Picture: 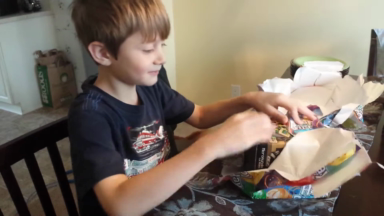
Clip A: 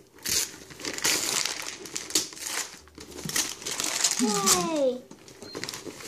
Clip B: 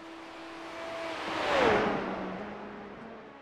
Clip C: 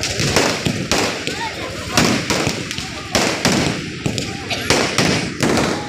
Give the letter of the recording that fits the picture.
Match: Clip A